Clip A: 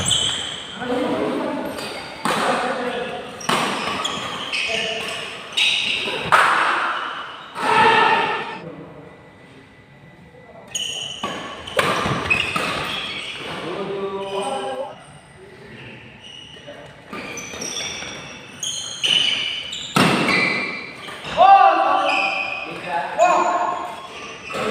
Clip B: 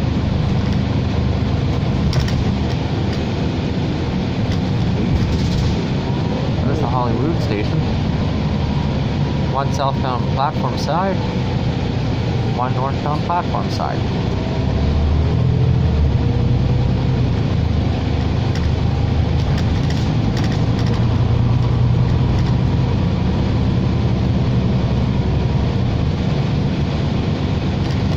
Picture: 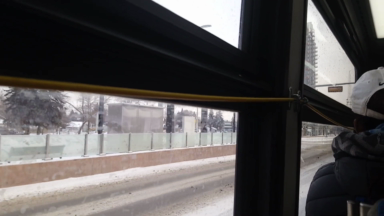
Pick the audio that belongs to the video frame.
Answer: B